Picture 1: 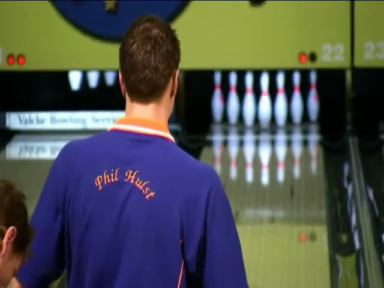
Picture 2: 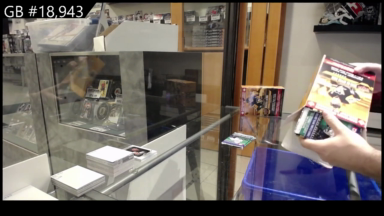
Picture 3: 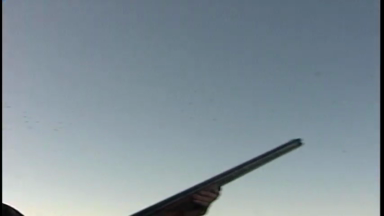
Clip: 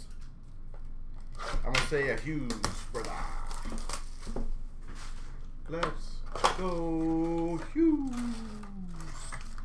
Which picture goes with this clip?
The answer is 2